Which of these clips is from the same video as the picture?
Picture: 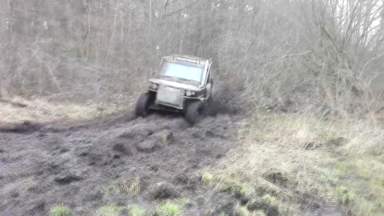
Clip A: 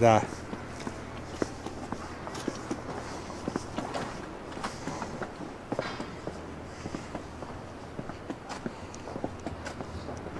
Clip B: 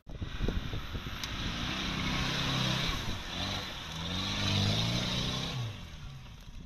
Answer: B